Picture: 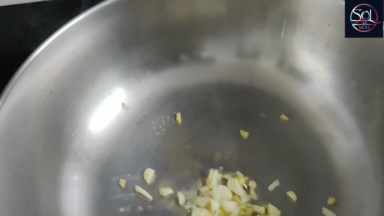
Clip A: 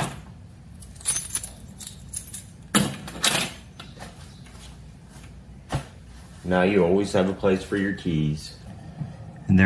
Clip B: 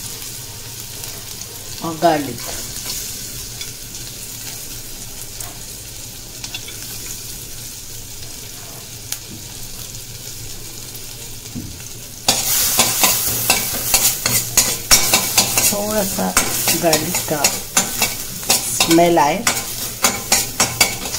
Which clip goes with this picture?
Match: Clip B